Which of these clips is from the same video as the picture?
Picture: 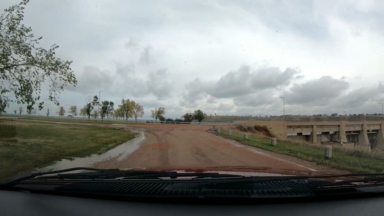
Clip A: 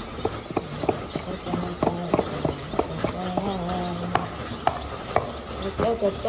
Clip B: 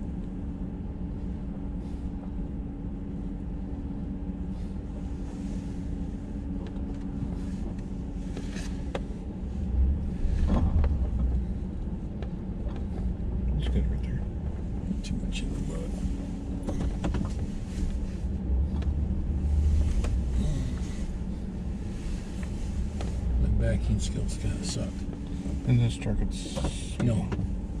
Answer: B